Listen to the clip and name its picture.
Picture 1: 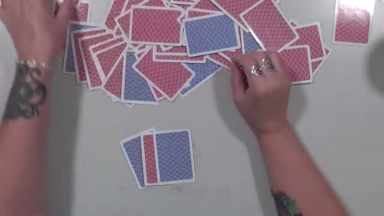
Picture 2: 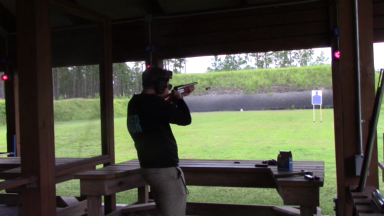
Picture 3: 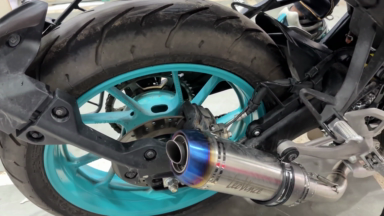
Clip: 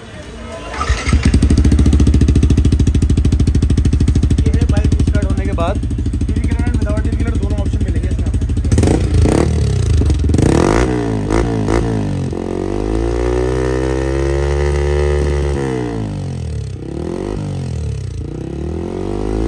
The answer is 3